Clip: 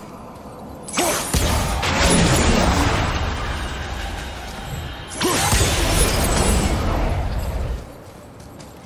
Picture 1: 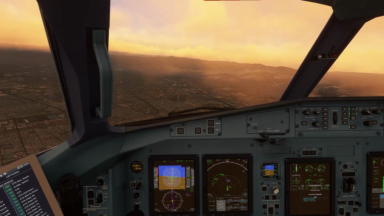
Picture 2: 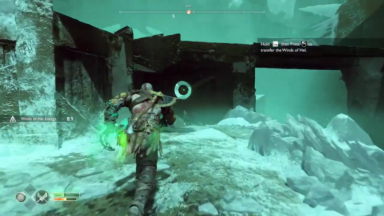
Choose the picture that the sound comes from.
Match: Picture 2